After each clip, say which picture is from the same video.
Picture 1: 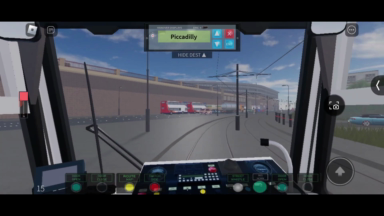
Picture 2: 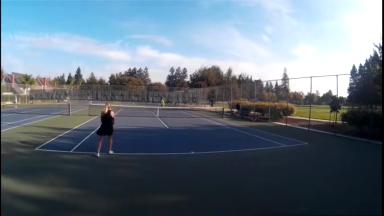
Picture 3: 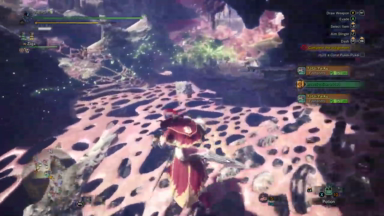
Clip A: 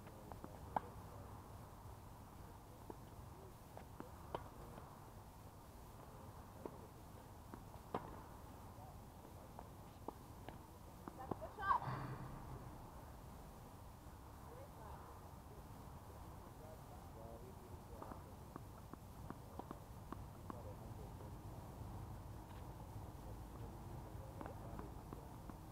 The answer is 2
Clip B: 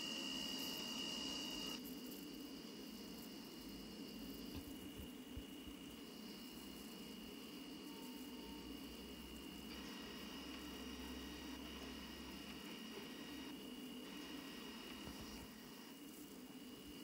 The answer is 1